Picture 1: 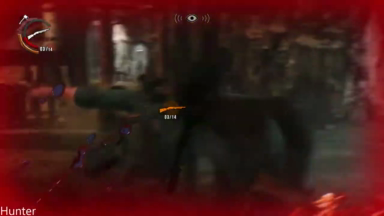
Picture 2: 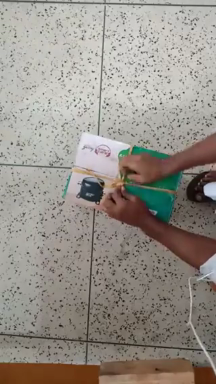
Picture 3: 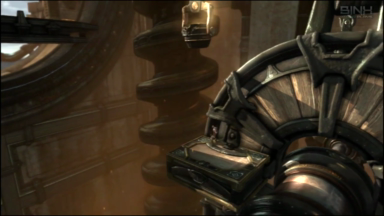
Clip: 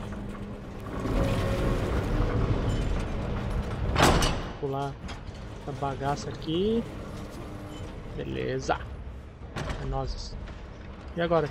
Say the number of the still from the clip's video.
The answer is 3